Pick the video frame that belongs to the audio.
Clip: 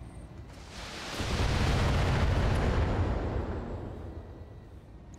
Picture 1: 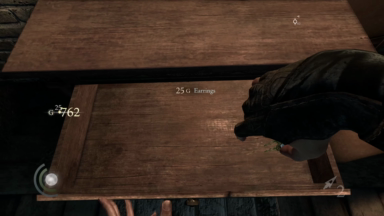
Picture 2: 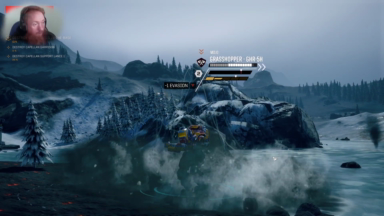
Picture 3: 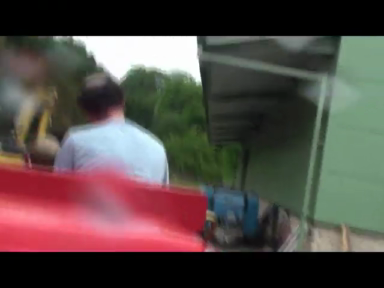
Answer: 2